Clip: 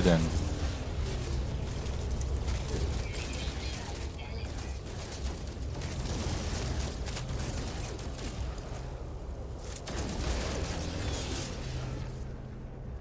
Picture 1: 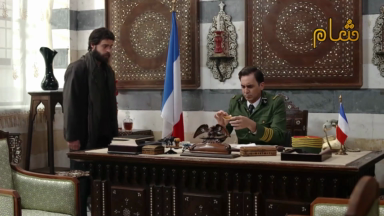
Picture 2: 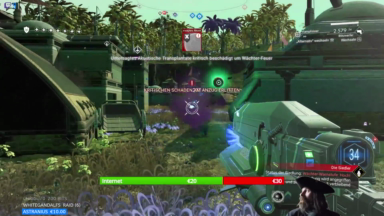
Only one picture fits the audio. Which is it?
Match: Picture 2